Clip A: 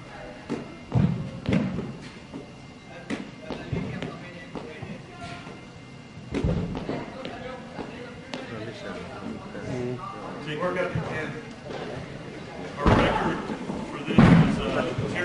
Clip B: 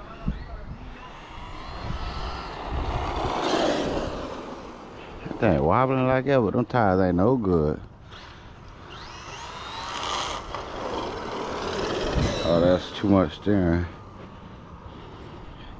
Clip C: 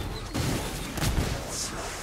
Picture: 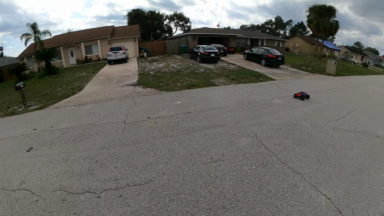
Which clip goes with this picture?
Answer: B